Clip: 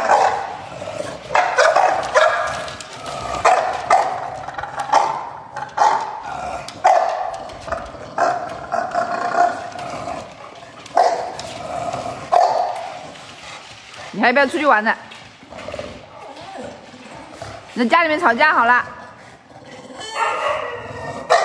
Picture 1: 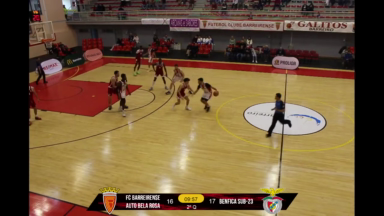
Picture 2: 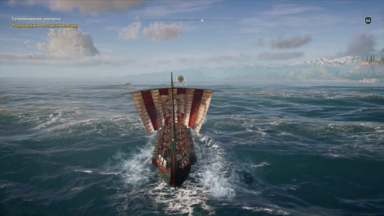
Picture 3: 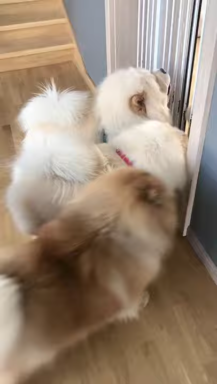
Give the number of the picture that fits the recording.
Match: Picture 3